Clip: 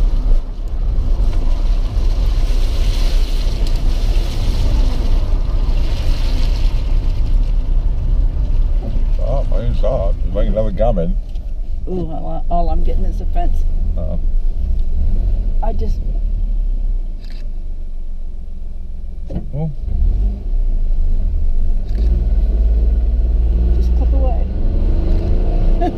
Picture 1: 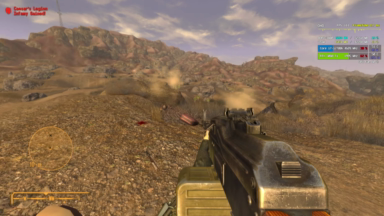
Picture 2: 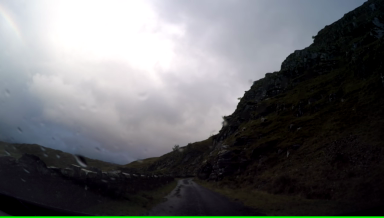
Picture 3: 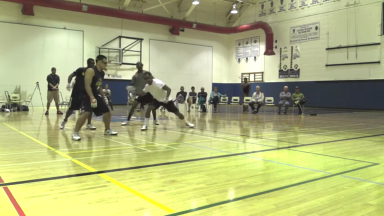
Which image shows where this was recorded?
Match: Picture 2